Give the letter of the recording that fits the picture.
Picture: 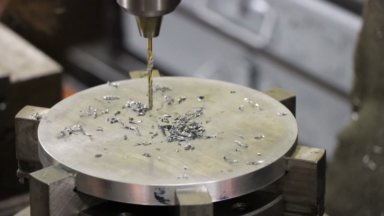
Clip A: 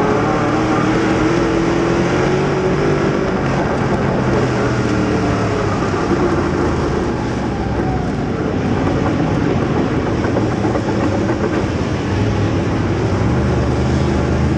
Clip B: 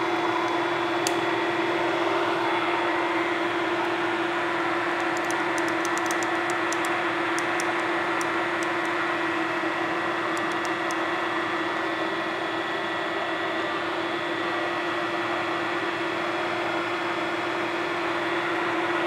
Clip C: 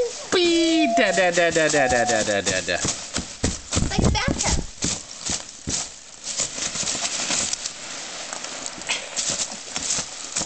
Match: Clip B